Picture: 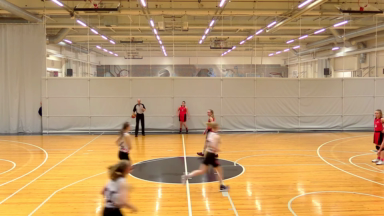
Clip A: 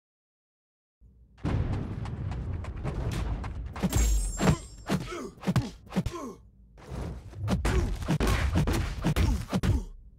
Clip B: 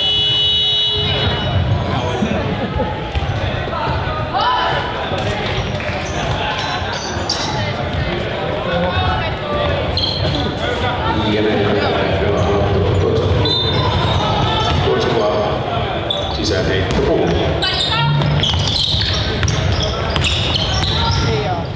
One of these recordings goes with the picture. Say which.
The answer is B